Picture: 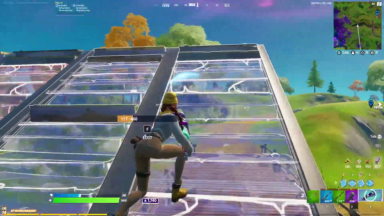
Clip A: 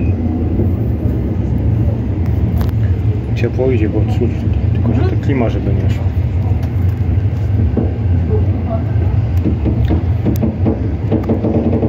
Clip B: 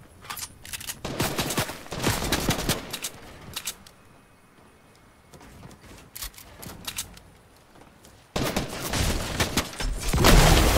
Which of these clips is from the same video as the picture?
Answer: B